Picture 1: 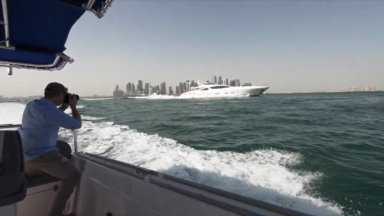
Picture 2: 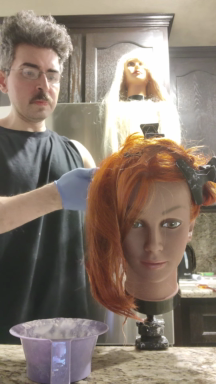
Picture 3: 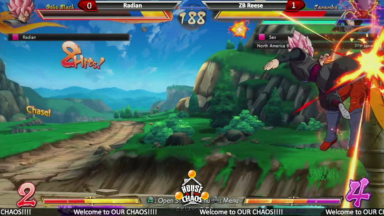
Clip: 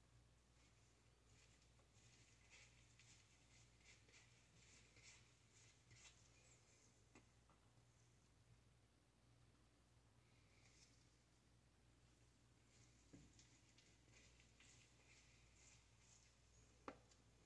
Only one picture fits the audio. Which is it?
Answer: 2